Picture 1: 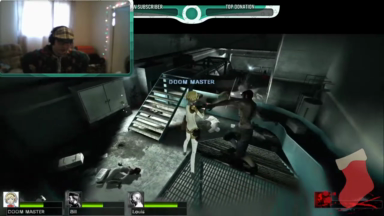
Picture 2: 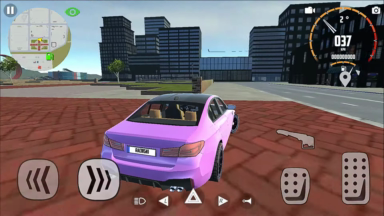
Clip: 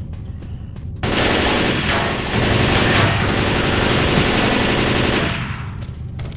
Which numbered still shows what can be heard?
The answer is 1